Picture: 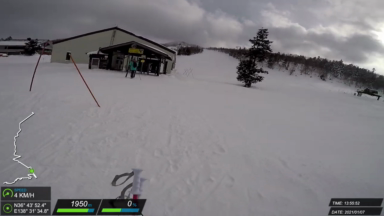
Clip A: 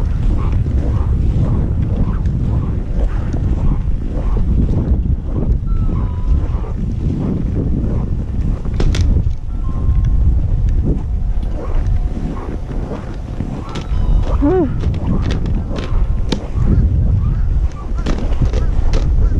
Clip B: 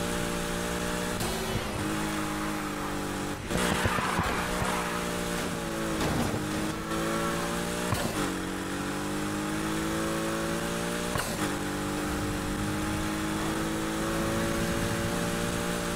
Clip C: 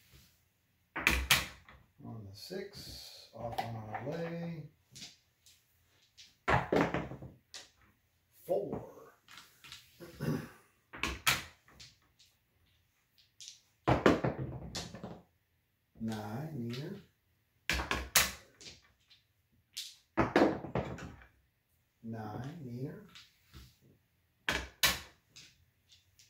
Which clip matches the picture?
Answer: A